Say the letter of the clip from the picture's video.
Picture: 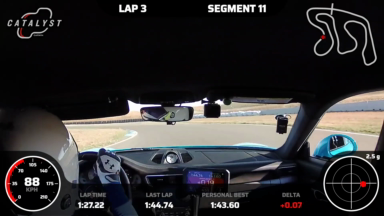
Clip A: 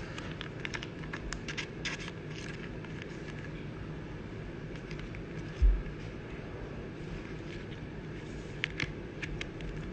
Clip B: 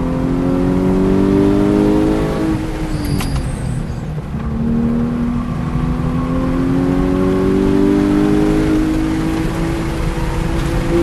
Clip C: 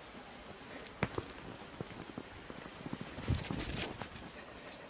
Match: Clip B